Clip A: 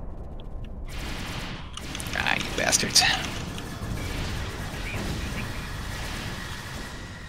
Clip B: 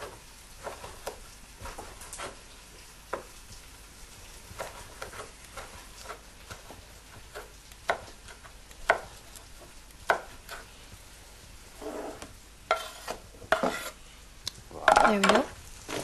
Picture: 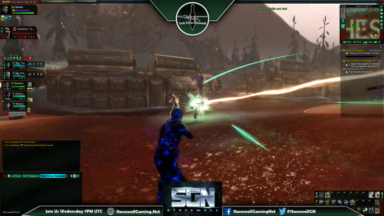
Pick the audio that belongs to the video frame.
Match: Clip A